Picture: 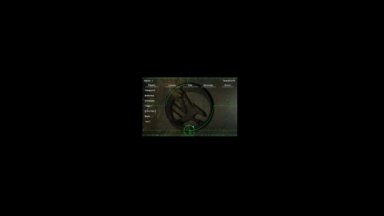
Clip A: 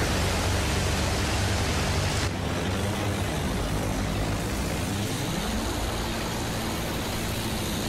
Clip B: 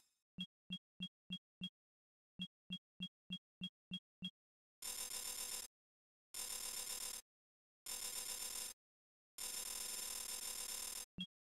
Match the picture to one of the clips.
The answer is B